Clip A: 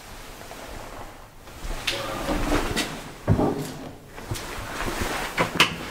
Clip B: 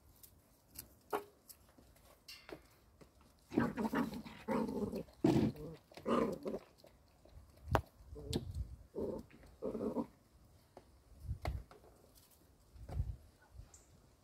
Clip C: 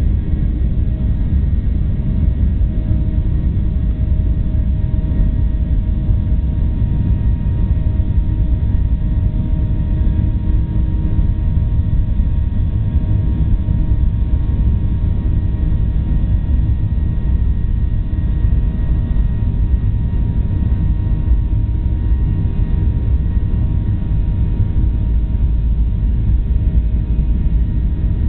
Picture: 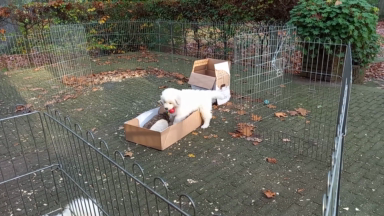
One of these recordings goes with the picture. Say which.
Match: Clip B